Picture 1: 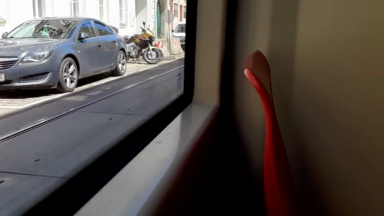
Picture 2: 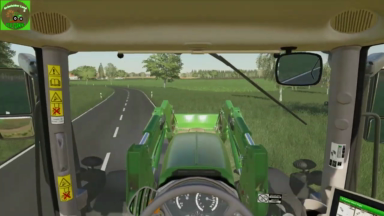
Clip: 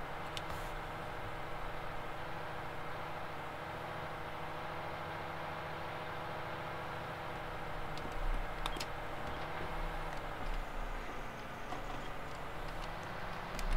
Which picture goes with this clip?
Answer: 2